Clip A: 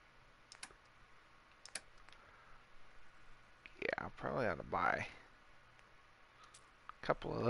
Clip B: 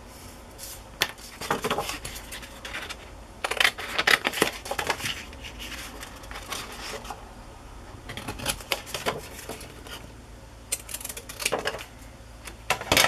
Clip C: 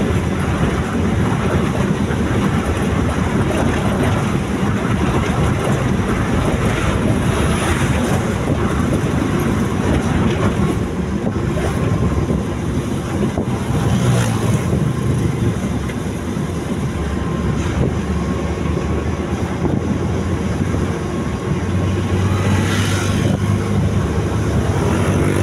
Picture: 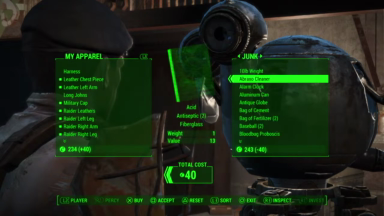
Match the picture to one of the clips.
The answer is A